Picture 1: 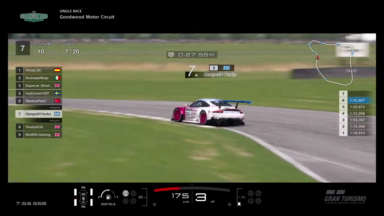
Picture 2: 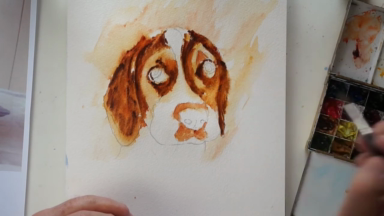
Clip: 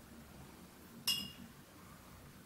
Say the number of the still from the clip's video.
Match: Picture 2